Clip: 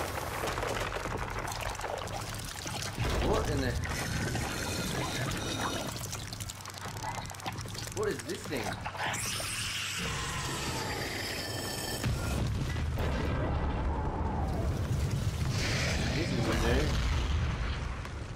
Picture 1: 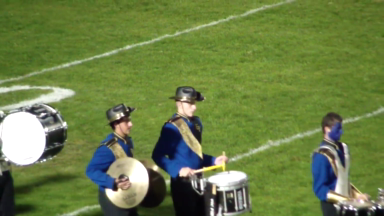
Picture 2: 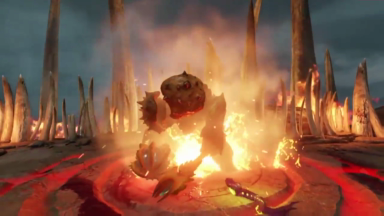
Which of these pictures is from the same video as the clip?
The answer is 2